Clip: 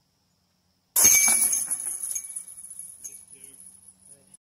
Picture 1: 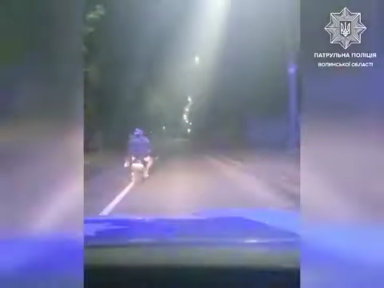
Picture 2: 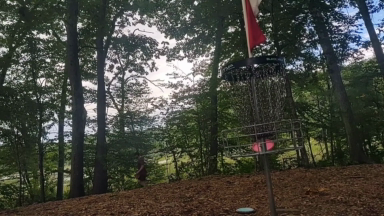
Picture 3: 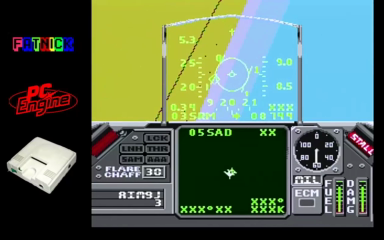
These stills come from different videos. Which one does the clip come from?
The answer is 2